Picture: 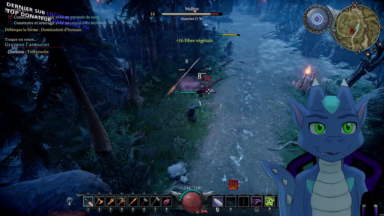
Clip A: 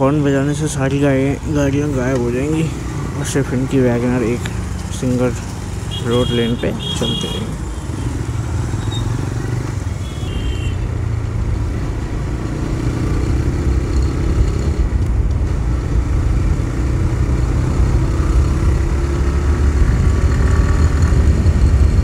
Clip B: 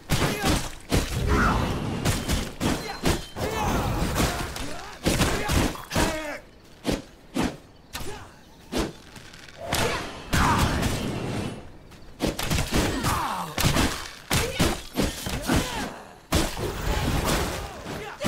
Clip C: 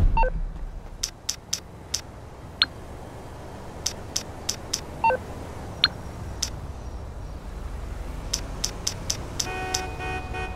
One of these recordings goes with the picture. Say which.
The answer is B